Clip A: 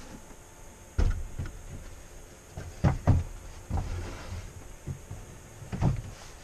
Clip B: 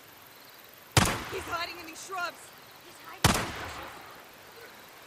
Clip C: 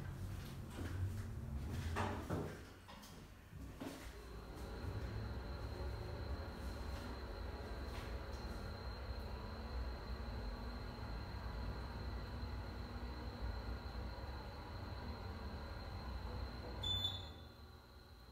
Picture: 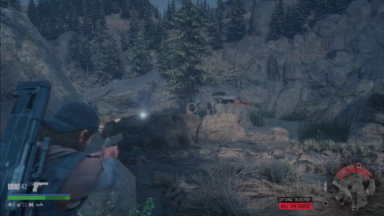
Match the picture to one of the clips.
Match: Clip B